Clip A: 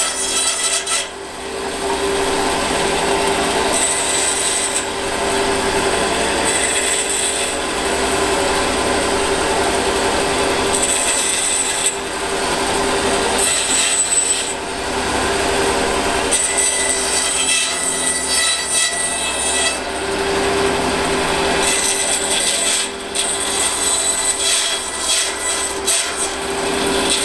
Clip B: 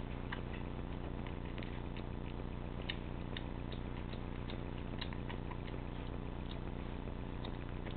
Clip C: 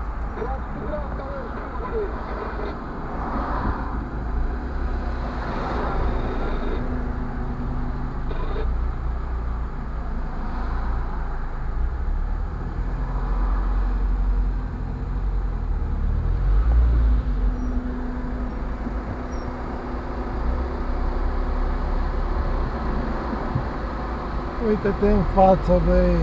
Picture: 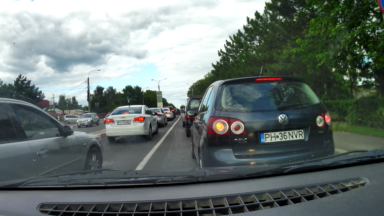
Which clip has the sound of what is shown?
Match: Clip C